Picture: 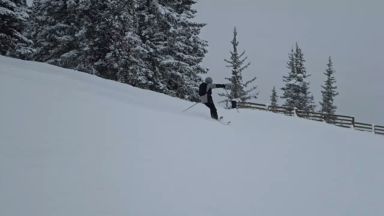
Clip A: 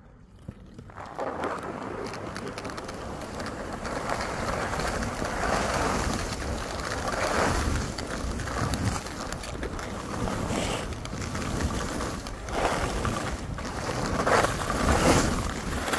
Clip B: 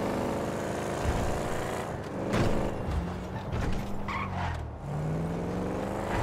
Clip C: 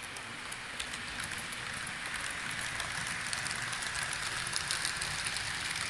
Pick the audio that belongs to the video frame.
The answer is A